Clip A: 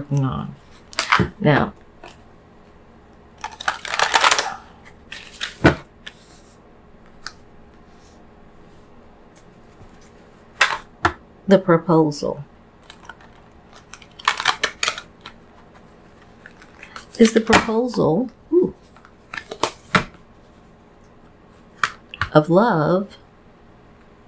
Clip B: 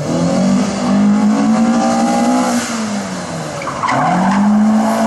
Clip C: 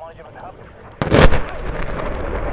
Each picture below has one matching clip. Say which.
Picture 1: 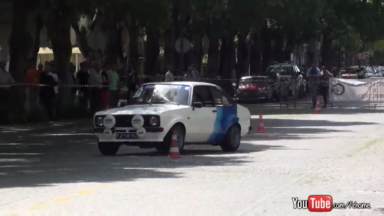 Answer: B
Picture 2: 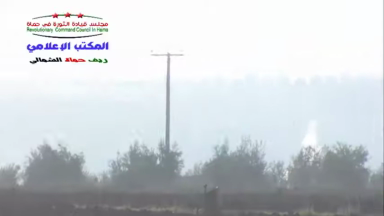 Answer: C